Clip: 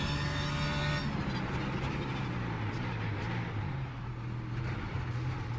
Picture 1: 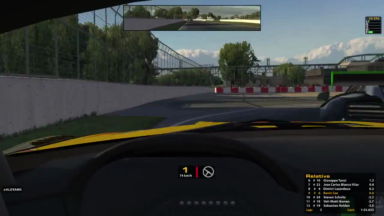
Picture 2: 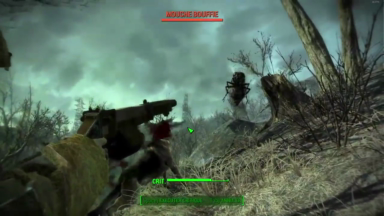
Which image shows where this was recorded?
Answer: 1